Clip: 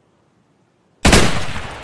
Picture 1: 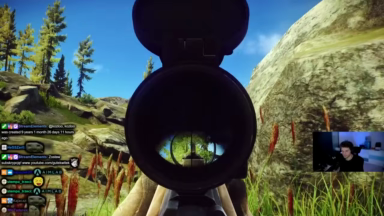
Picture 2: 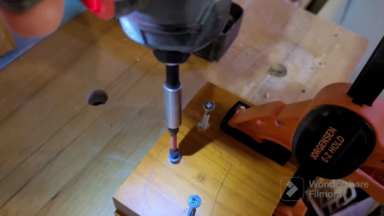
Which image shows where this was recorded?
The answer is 1